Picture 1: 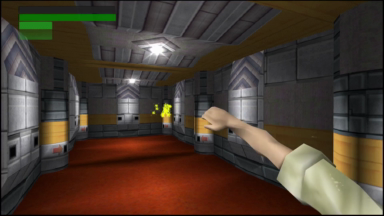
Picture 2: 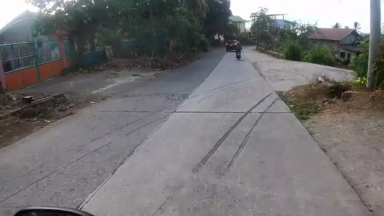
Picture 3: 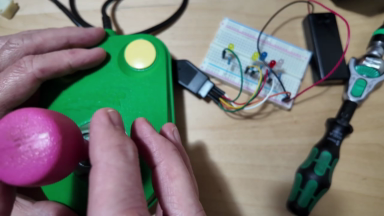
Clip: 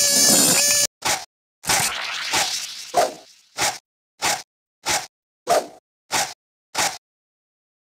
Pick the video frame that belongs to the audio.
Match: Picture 1